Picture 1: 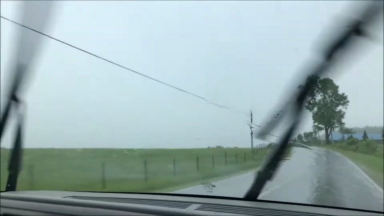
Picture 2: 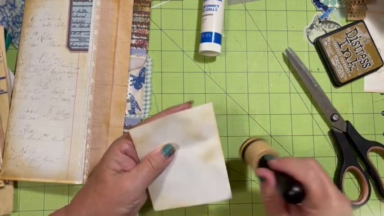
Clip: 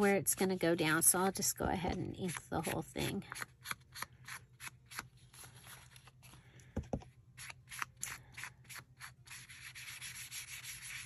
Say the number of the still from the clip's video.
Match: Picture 2